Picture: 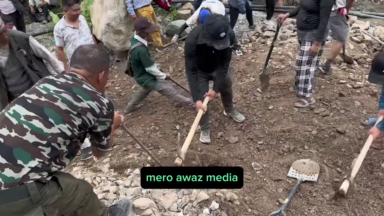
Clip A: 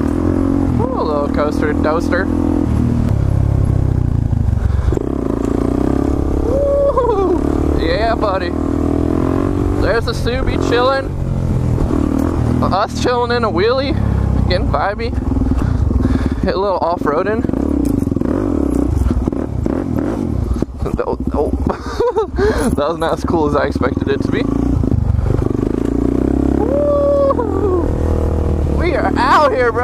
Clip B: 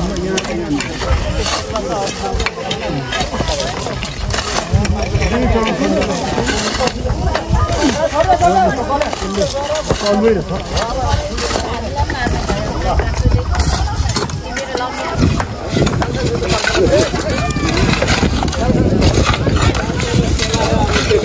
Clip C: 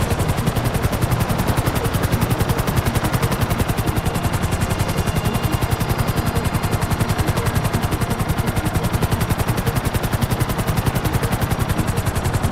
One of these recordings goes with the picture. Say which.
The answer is B